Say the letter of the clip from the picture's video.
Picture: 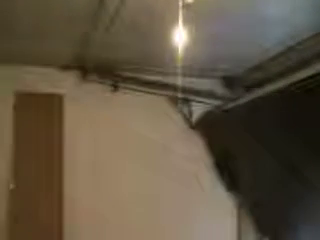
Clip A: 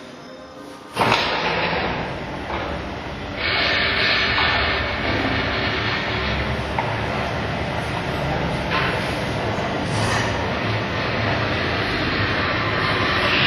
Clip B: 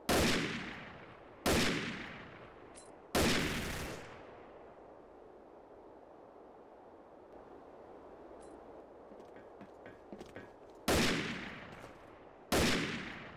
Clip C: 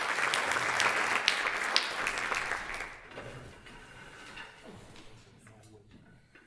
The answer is A